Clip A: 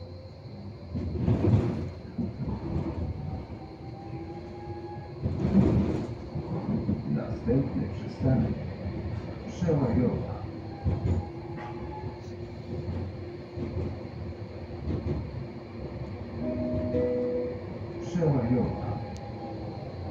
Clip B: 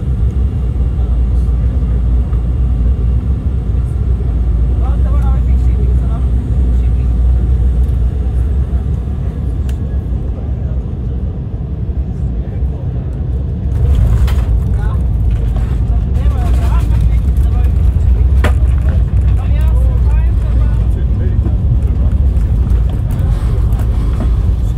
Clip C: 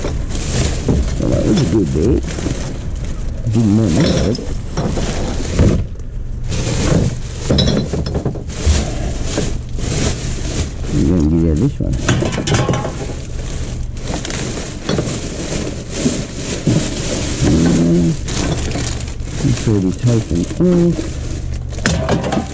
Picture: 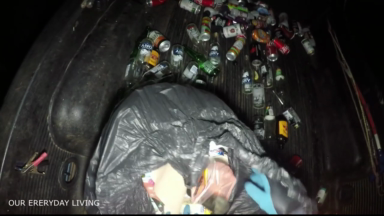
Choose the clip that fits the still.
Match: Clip C